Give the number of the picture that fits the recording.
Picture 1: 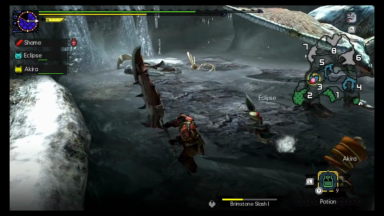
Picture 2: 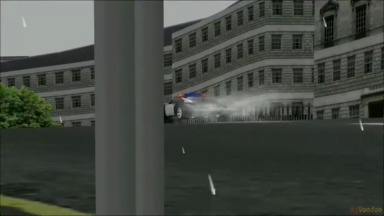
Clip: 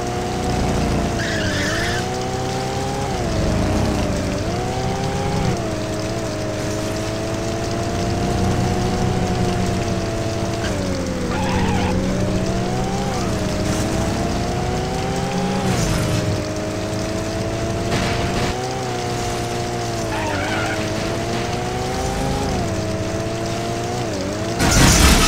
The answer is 2